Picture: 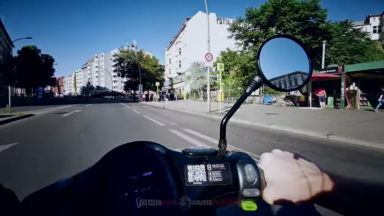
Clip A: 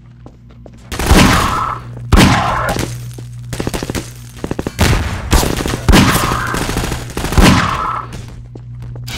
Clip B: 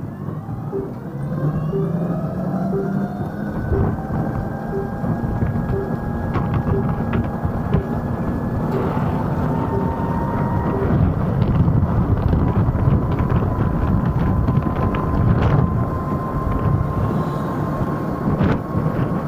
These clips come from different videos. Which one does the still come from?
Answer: B